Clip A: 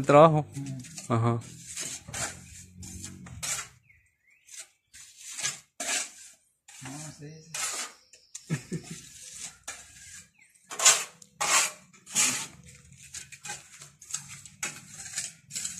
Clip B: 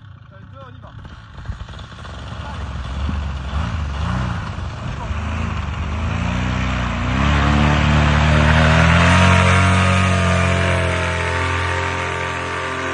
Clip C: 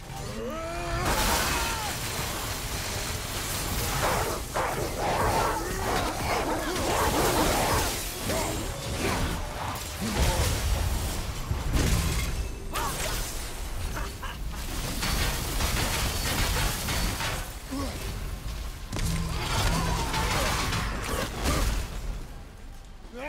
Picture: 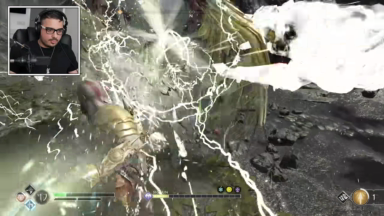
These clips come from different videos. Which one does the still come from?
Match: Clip C